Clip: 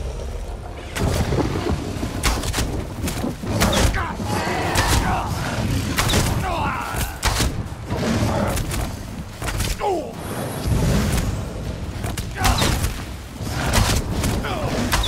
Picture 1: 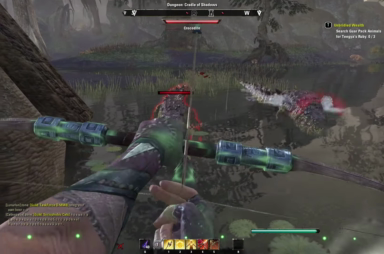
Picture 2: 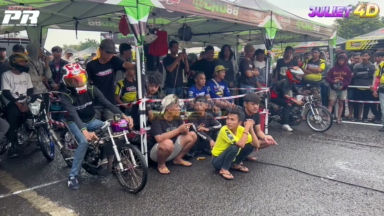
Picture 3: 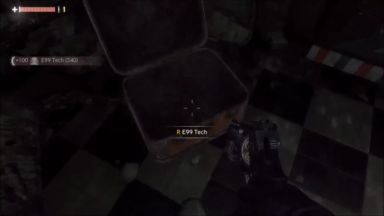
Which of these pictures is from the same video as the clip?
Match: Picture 1